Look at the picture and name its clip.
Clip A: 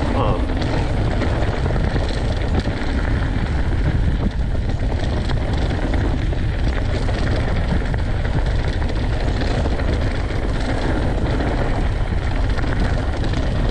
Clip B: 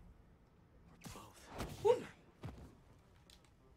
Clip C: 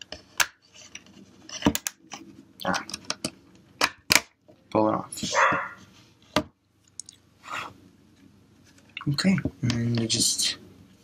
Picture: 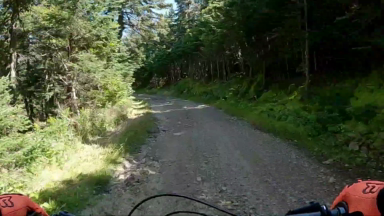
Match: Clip A